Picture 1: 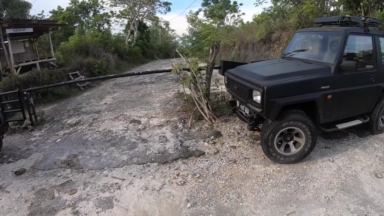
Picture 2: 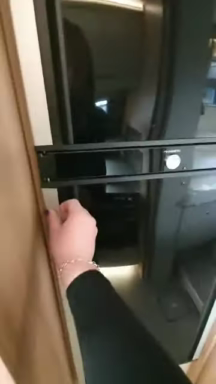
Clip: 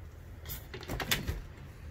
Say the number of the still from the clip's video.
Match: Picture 2